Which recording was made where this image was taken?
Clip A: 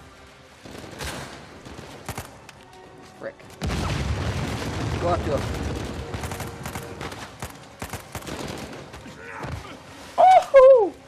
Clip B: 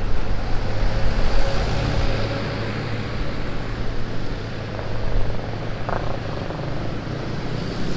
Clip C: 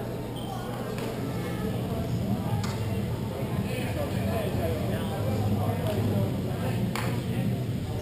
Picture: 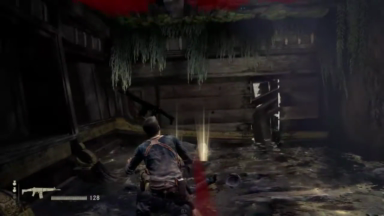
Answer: A